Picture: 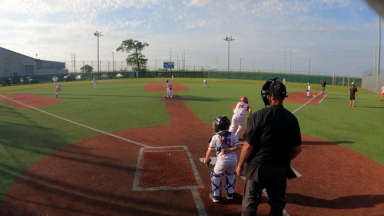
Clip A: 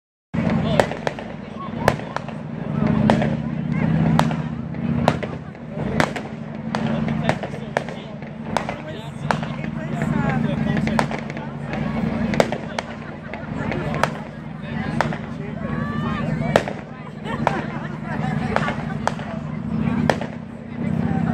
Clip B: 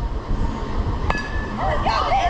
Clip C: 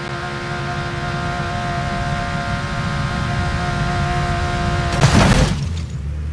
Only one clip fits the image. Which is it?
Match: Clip B